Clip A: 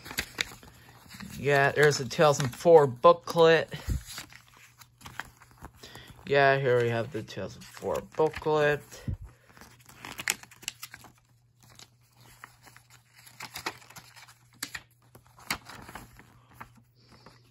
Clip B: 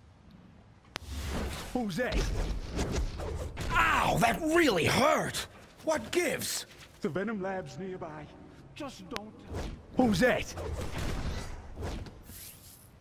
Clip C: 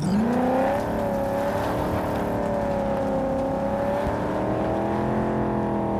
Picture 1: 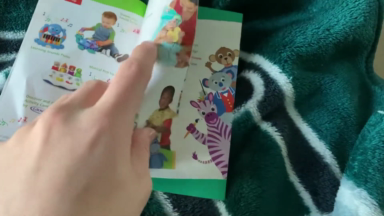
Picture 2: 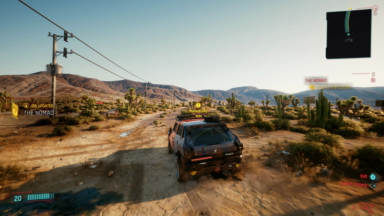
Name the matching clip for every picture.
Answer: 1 A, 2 C